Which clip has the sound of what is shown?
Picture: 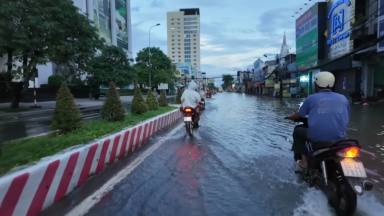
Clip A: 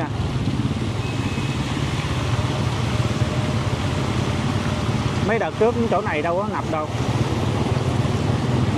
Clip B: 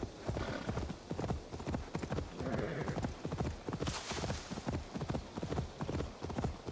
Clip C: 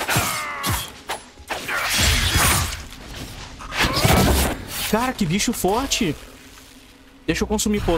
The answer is A